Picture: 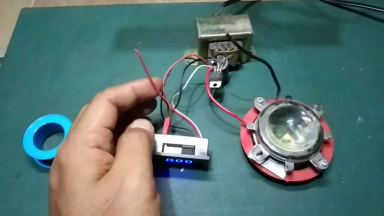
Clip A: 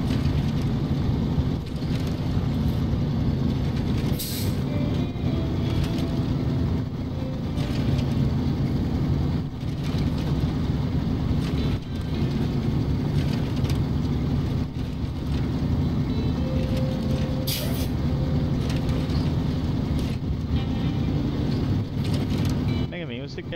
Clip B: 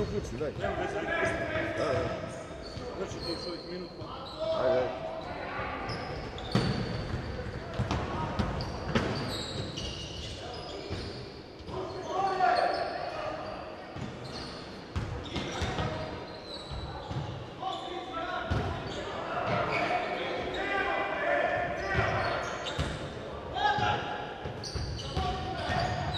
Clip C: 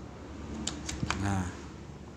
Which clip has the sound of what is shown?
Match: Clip C